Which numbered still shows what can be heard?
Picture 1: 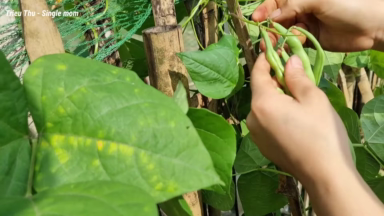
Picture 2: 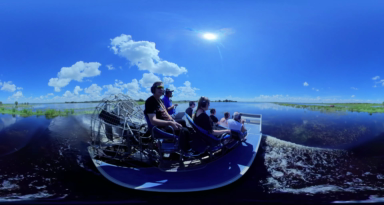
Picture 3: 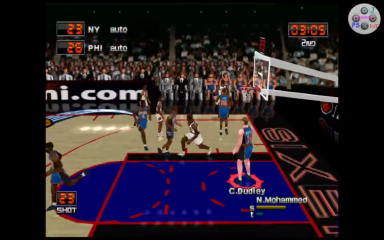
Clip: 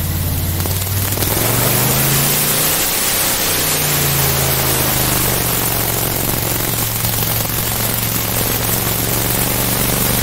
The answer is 2